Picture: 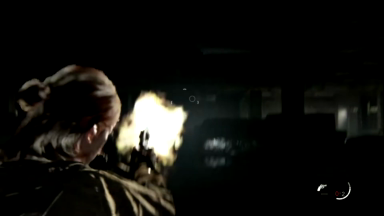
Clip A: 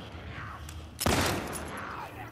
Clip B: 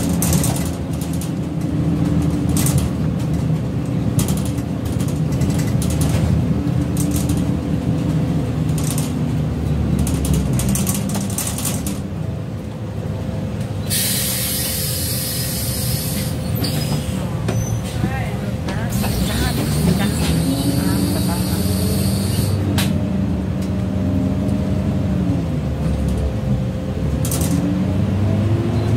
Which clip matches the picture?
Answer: A